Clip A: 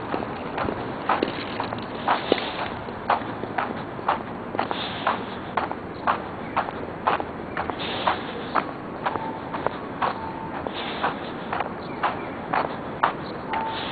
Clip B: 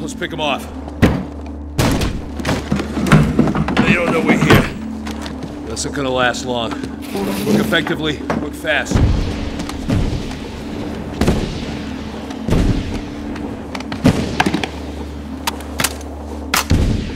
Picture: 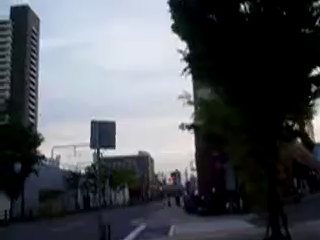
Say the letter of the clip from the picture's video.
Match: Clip A